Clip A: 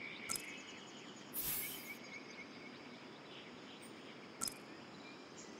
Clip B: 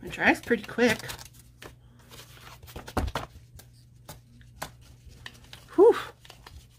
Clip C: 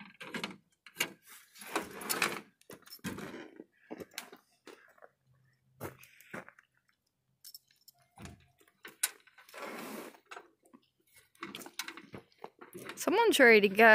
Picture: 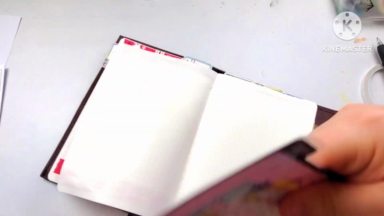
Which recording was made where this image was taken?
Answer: B